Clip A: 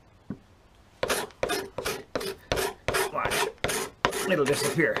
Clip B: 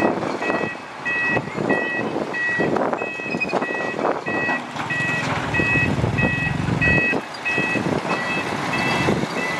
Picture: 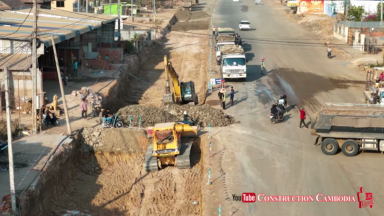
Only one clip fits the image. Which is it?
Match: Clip B